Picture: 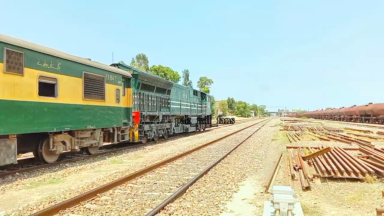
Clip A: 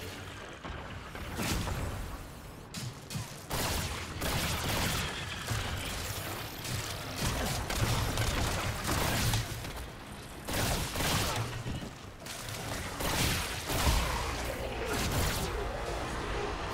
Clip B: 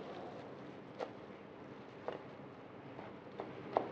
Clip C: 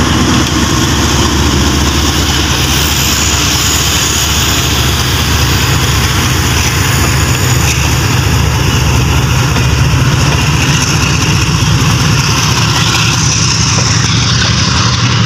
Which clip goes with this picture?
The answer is C